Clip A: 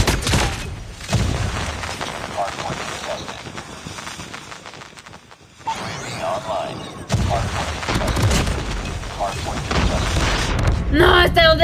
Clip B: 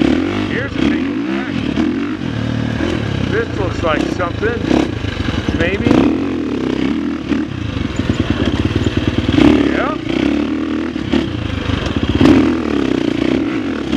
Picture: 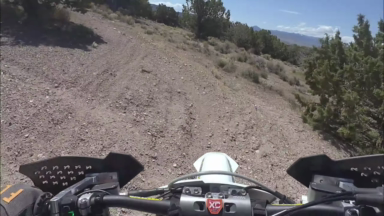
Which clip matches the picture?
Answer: B